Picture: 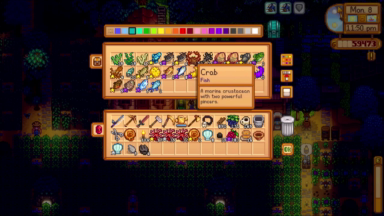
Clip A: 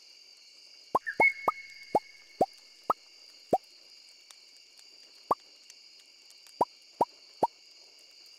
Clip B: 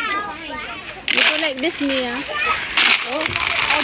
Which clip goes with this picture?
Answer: A